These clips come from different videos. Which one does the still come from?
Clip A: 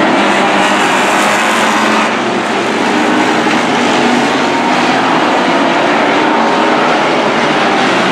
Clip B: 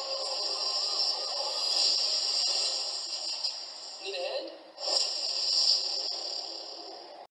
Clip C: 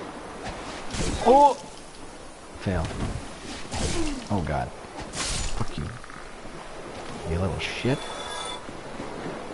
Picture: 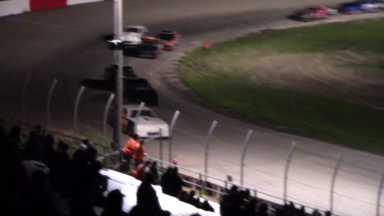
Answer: A